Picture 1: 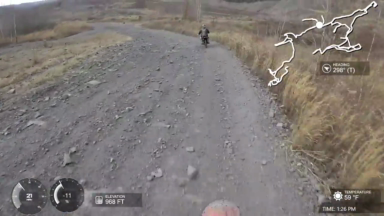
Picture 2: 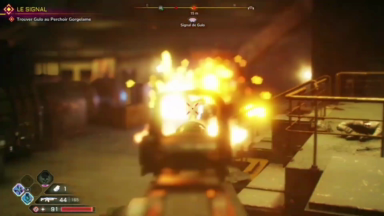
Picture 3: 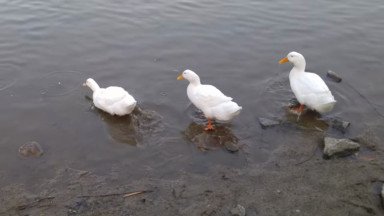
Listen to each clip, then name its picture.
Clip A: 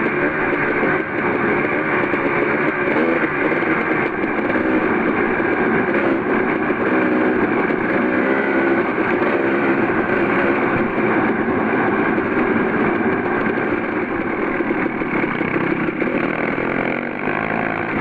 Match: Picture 1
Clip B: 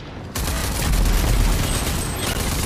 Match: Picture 2